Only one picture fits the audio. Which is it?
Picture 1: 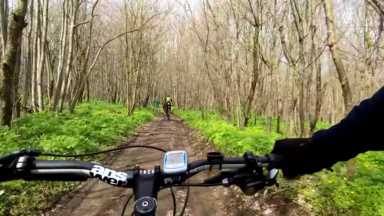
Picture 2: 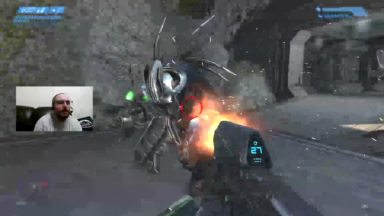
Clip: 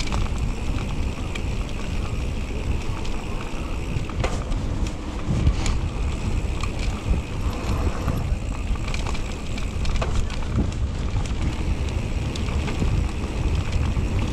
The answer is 1